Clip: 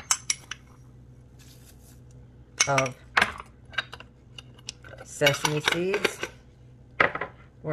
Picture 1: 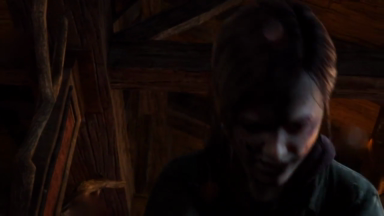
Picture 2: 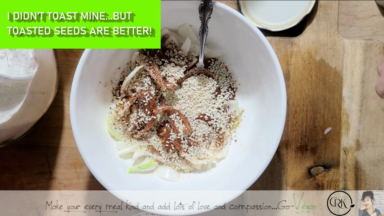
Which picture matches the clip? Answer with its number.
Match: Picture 2